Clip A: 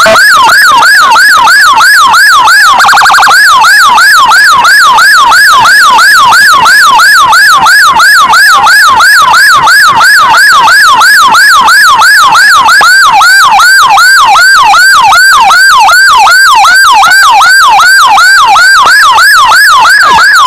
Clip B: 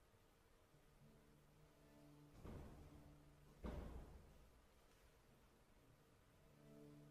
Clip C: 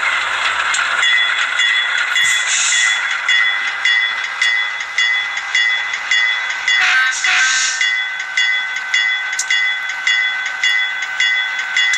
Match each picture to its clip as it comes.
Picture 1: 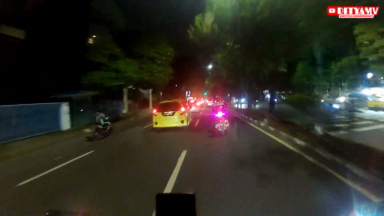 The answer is A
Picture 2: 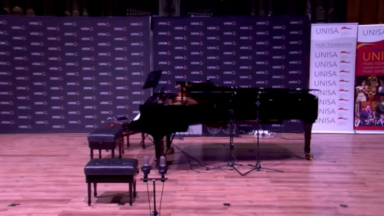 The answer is B